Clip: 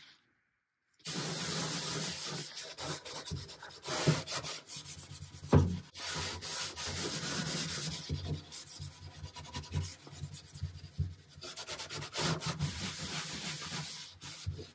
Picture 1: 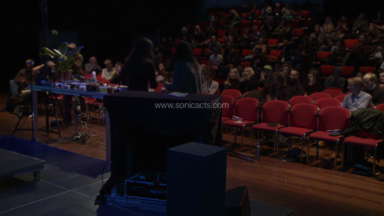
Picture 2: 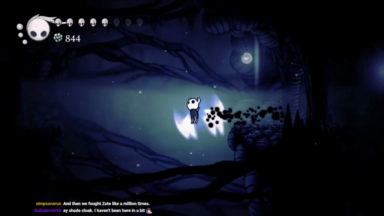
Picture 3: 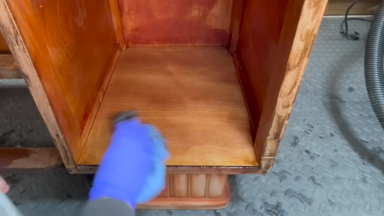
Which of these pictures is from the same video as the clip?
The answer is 3